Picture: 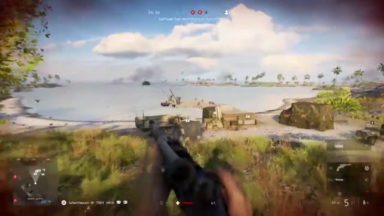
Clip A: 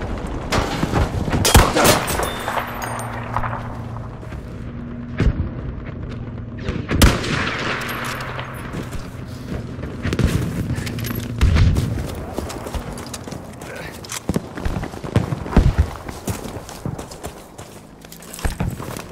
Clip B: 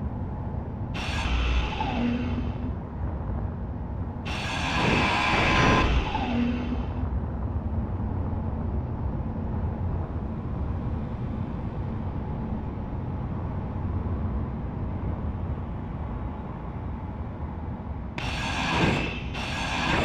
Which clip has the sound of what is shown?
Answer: A